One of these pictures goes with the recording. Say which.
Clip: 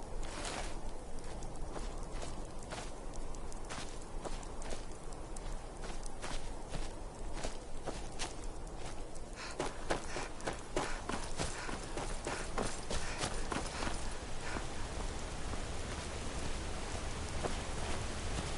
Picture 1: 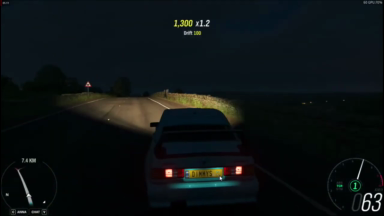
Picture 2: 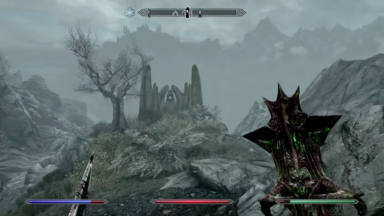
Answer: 2